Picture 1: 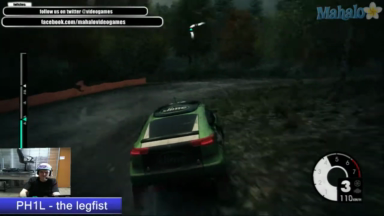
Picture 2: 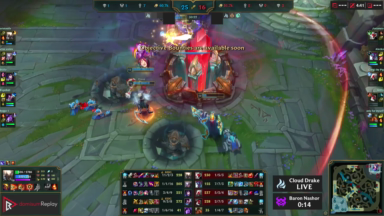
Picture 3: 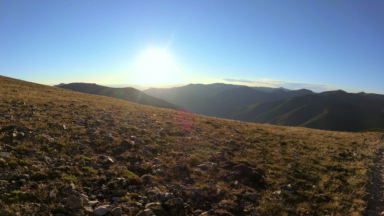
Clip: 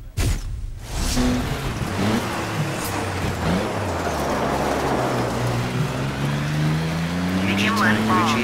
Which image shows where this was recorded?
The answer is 1